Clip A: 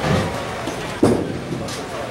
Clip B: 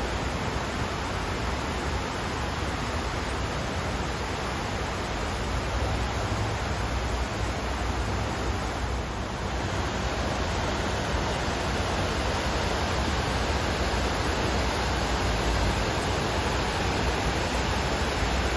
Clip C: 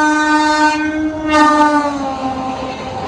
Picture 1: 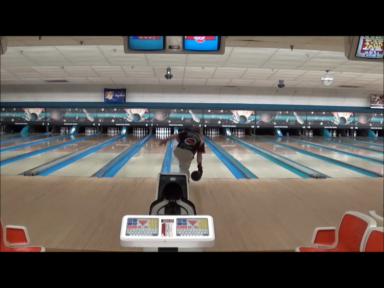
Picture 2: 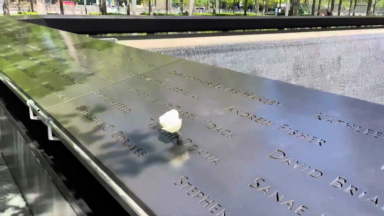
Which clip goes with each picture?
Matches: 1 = A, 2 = B